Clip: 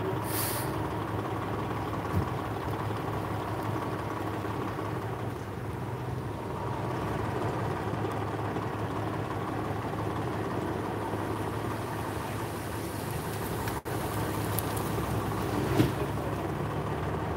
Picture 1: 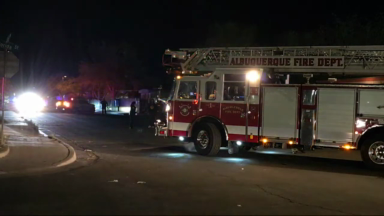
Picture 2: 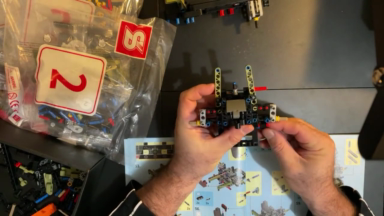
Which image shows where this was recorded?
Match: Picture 1